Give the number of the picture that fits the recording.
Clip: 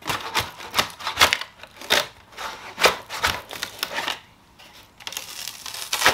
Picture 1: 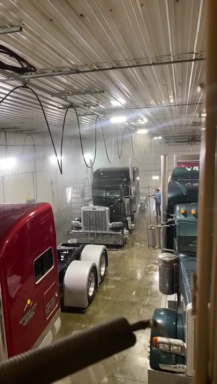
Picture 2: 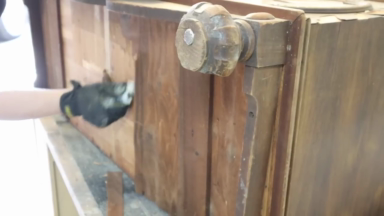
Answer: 2